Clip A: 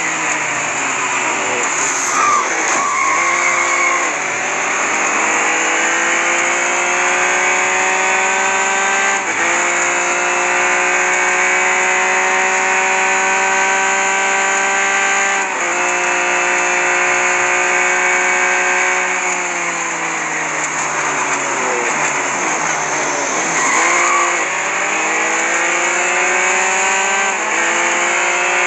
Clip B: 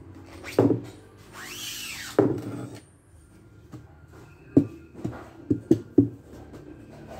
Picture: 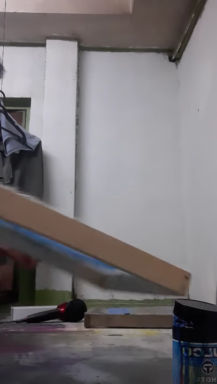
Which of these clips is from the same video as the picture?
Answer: B